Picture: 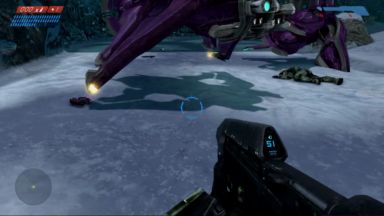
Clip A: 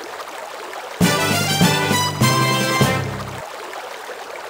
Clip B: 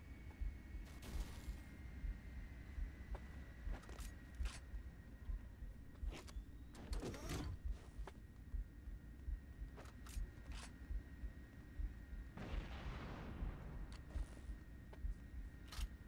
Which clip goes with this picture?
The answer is B